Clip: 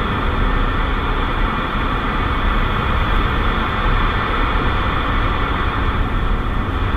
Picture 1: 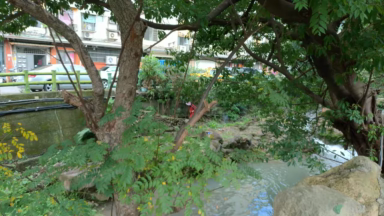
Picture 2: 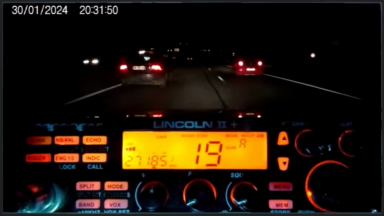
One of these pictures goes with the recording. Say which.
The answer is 2